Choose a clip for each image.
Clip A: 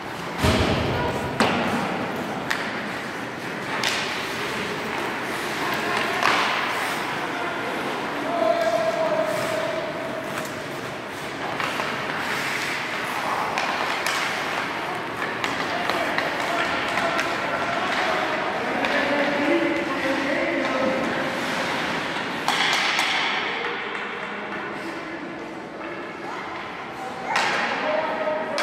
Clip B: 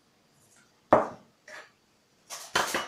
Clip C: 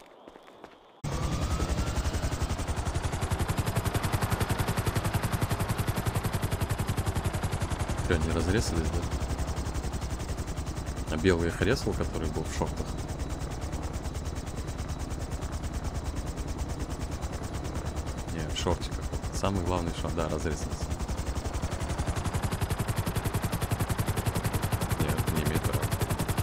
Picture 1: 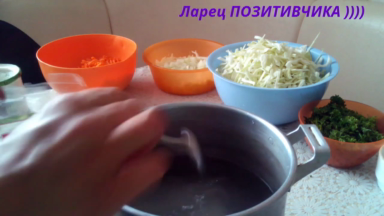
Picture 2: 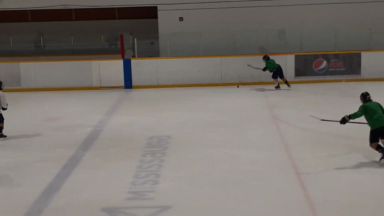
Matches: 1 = B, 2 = A